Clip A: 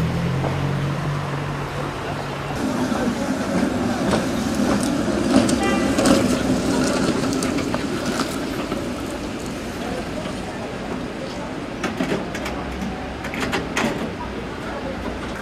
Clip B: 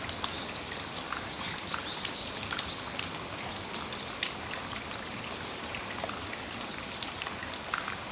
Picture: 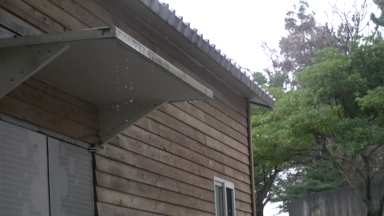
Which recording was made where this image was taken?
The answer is B